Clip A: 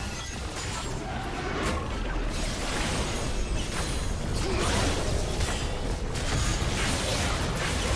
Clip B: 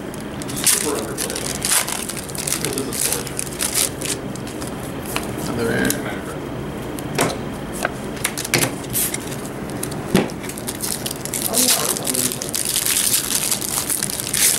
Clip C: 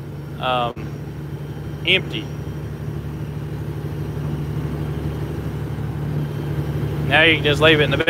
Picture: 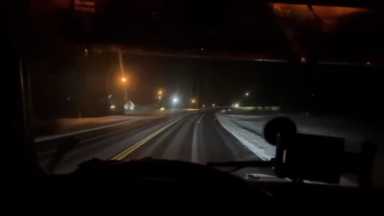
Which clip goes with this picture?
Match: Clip C